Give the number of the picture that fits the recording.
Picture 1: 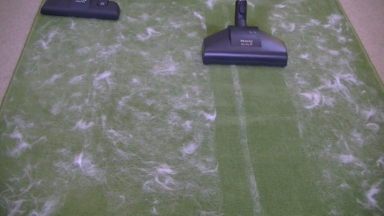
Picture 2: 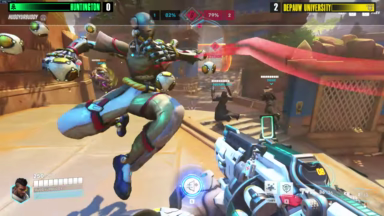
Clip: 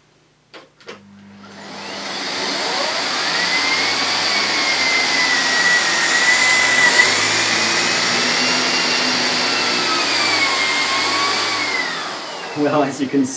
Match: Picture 1